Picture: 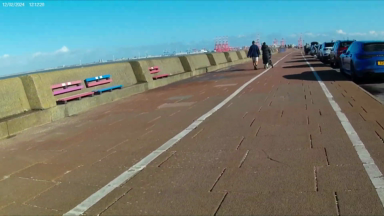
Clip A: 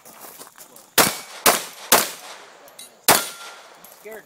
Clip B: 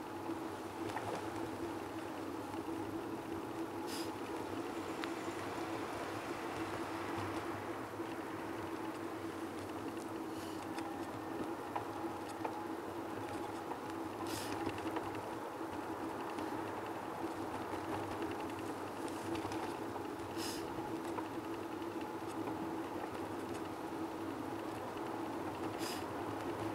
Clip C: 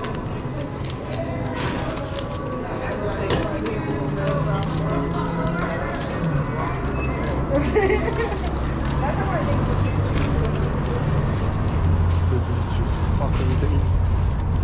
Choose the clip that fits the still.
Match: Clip B